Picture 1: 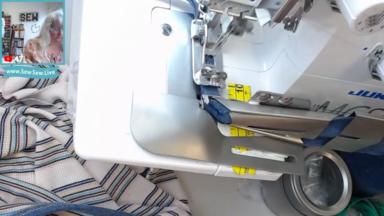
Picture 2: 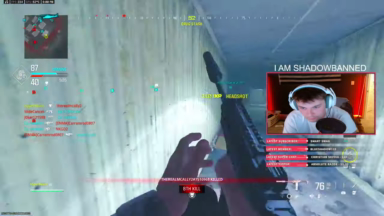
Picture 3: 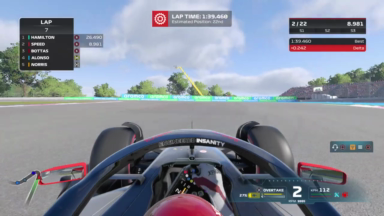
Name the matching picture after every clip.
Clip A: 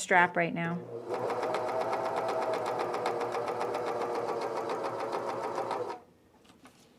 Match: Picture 1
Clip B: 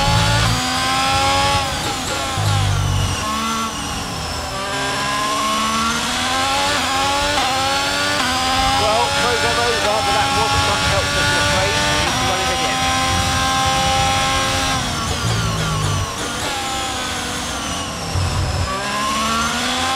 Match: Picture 3